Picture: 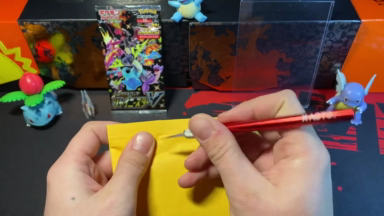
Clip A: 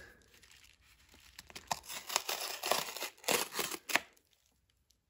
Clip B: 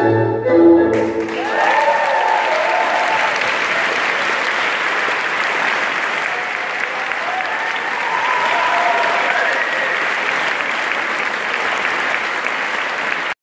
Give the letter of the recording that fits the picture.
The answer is A